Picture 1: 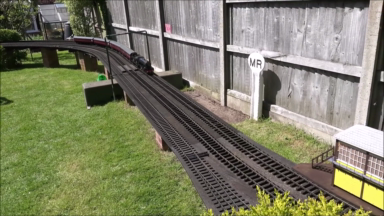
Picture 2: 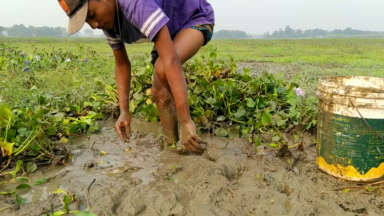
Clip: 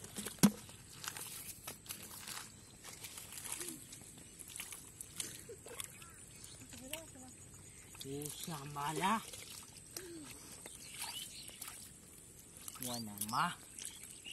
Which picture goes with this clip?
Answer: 2